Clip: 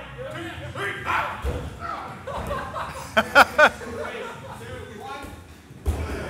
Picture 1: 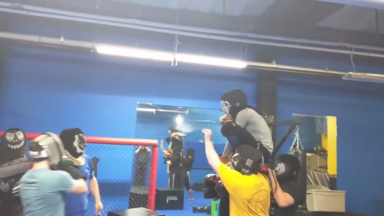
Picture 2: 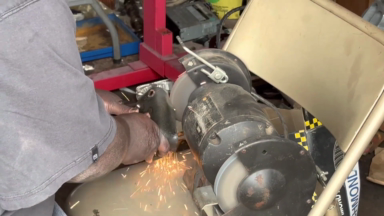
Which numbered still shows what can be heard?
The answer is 1